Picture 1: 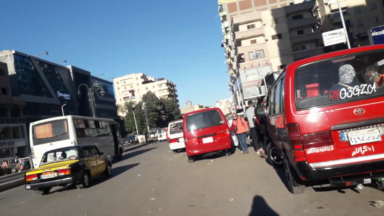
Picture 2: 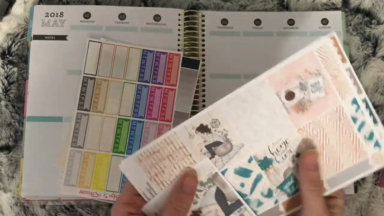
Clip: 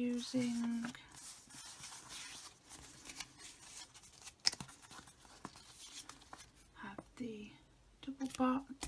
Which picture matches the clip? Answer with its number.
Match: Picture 2